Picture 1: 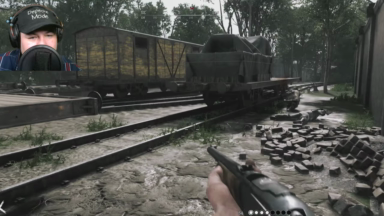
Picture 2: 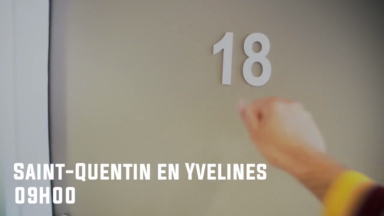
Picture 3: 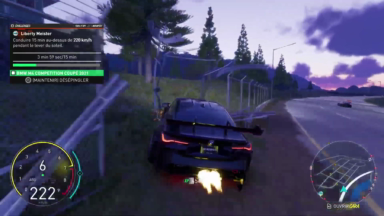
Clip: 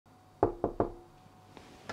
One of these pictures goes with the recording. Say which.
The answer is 2